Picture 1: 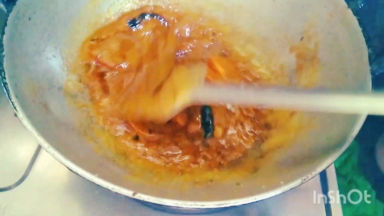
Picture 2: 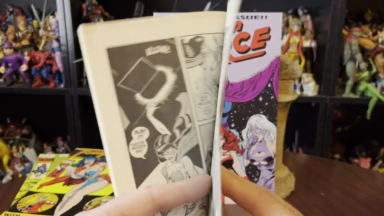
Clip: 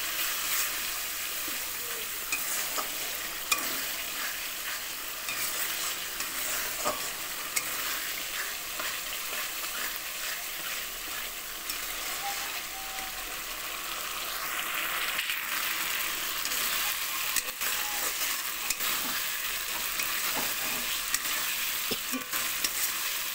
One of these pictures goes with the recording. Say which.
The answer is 1